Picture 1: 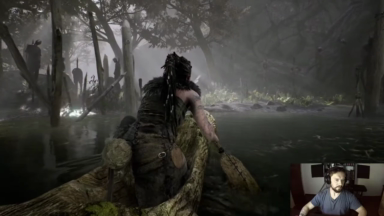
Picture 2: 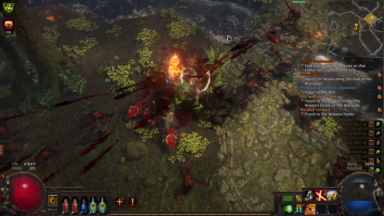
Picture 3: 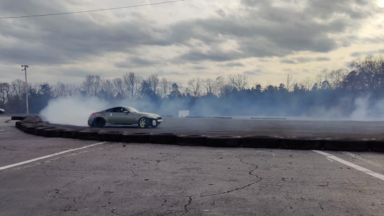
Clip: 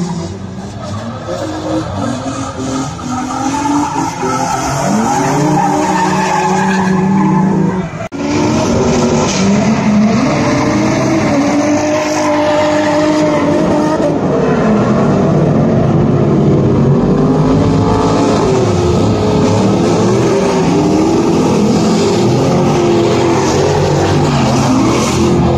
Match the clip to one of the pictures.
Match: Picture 3